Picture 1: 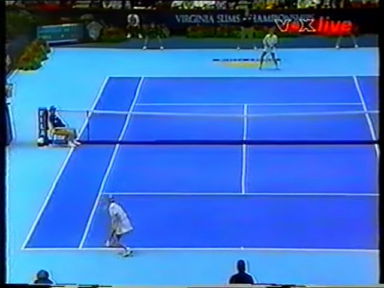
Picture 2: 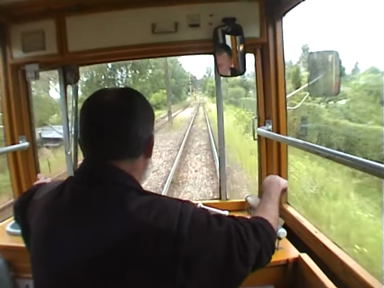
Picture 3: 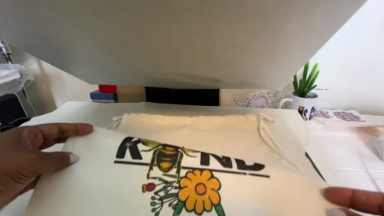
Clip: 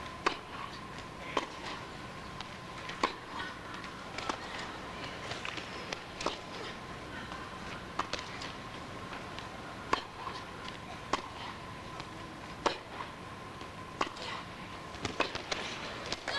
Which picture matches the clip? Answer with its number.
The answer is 1